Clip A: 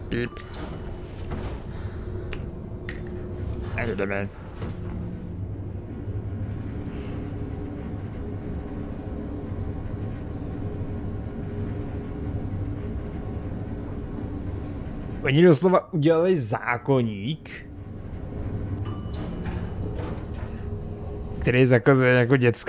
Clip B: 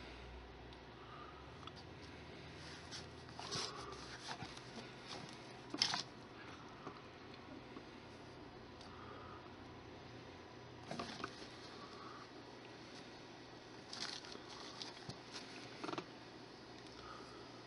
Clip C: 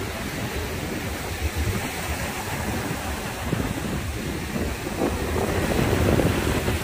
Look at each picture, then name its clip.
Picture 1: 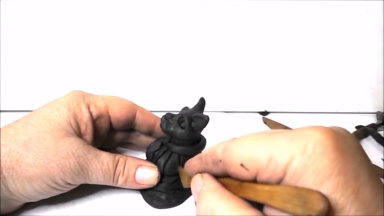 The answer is B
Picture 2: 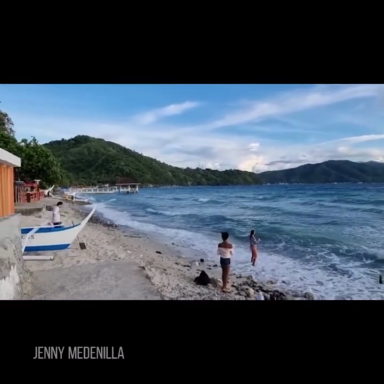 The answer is C